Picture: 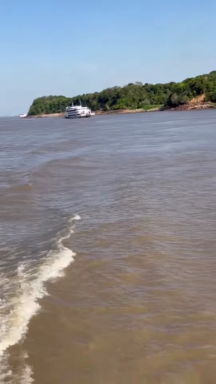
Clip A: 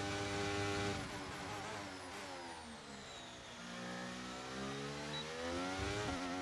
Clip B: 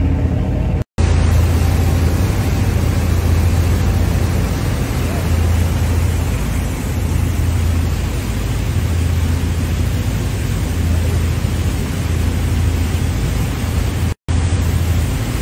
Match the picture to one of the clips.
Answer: B